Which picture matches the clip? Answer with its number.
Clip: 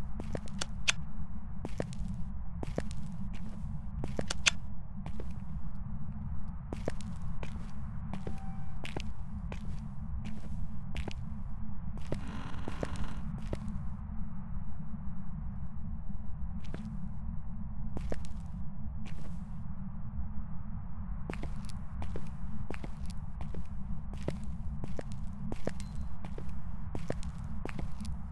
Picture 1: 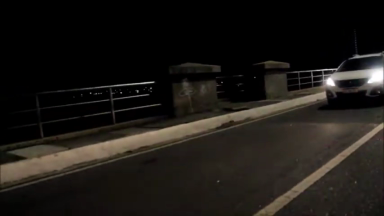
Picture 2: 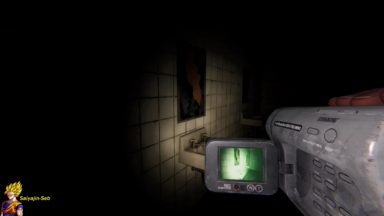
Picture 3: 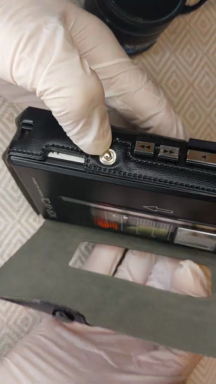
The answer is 2